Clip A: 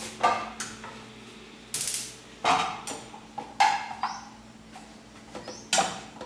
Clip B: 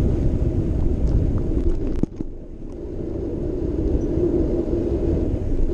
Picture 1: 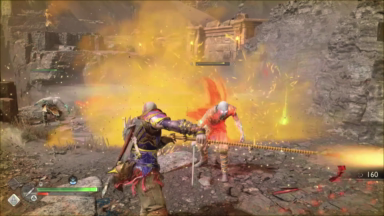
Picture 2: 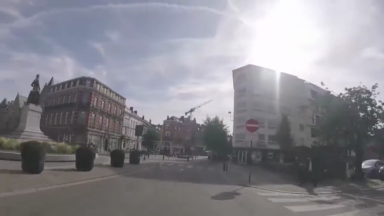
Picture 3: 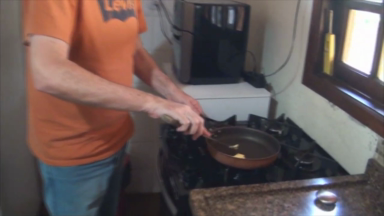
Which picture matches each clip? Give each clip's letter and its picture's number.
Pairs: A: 3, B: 2